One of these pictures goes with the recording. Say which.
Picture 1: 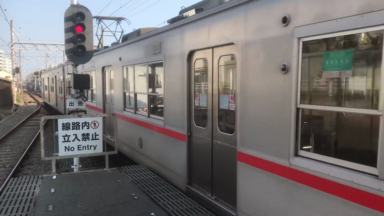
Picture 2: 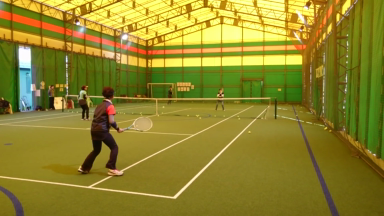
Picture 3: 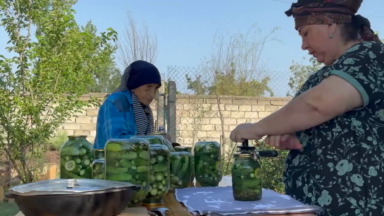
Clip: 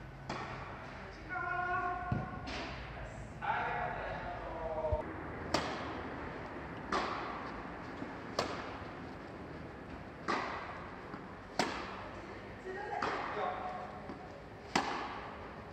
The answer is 2